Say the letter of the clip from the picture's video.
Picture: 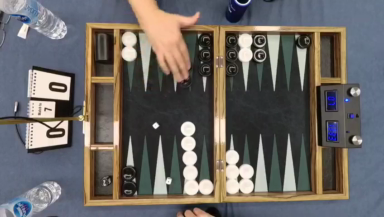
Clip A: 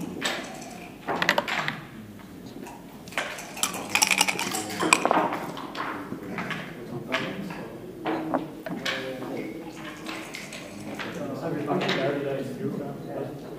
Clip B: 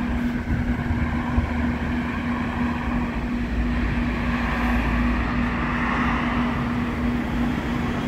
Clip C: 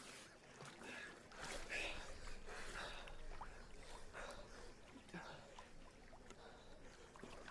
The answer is A